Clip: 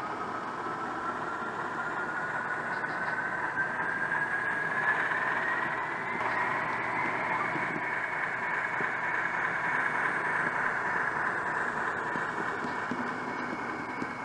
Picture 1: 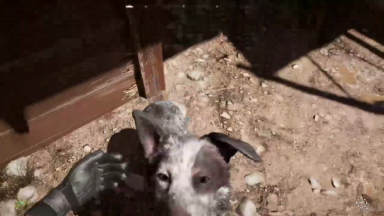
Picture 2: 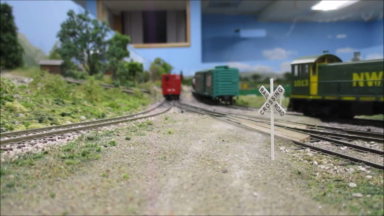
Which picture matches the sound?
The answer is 2